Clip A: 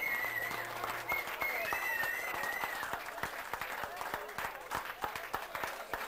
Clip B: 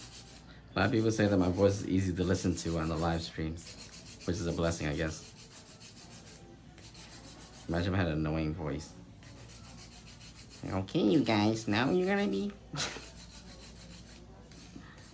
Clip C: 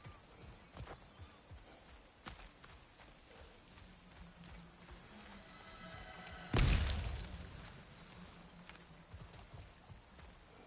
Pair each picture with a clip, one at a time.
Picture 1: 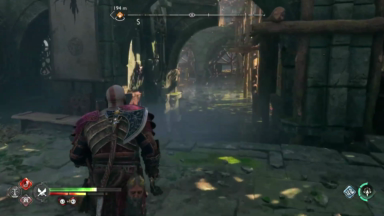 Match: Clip C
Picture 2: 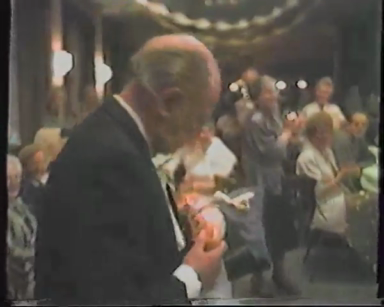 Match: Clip A